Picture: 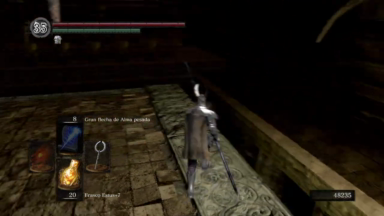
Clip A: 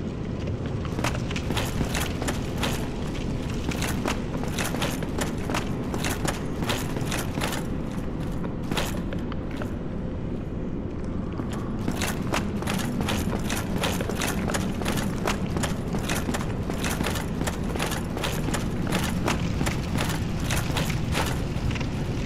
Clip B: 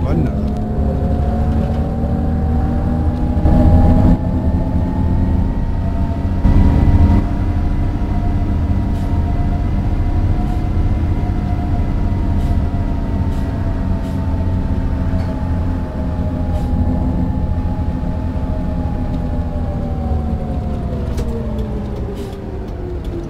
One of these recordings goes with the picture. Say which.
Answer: A